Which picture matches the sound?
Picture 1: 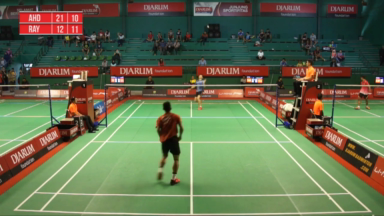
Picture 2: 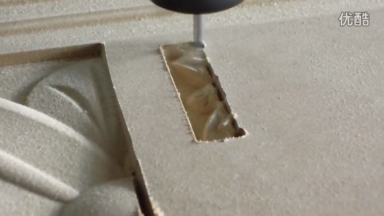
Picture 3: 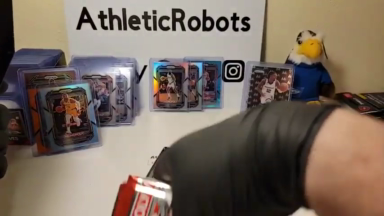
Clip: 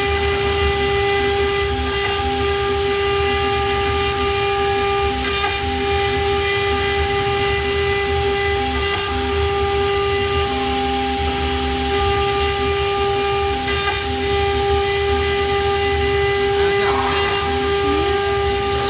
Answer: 2